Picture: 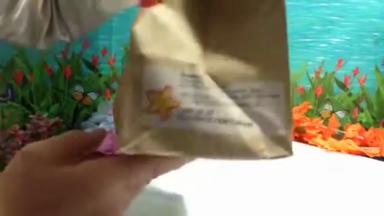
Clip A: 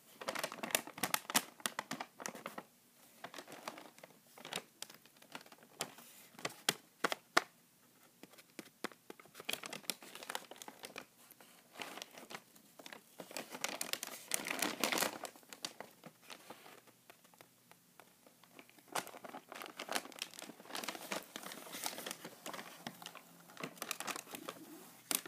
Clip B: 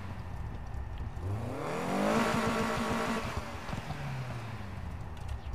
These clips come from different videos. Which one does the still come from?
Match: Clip A